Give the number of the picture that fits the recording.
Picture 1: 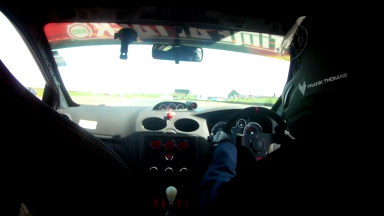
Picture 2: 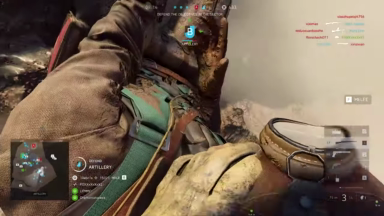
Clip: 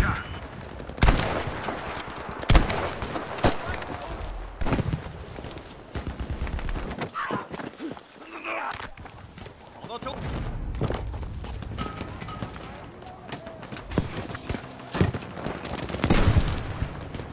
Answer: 2